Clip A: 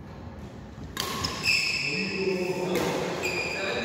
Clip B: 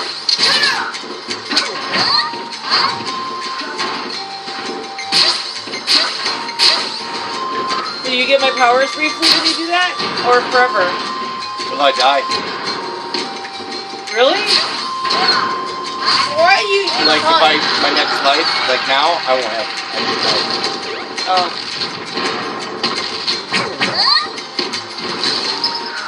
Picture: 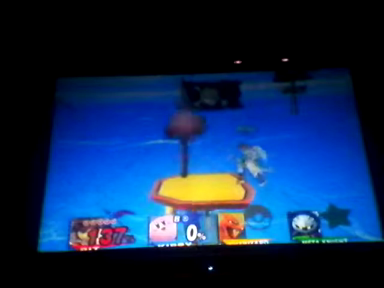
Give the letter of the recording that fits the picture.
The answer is B